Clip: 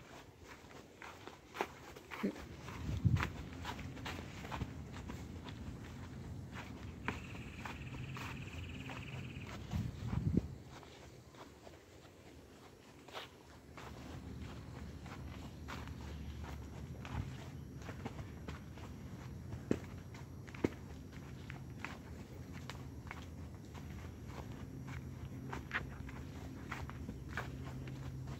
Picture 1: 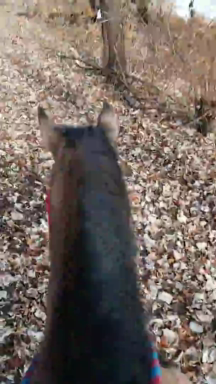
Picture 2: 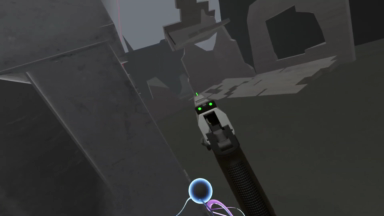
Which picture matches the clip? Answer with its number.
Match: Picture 1